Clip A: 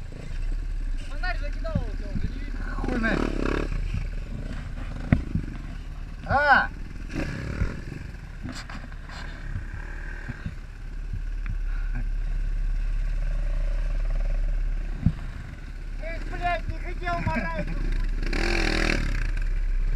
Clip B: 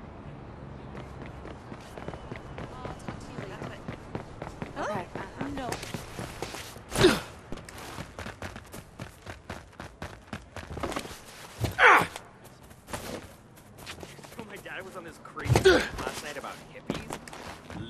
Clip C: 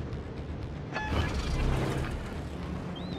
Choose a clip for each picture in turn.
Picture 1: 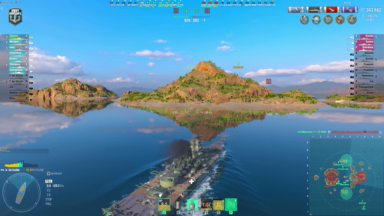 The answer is C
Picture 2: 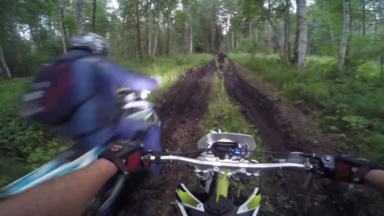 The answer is A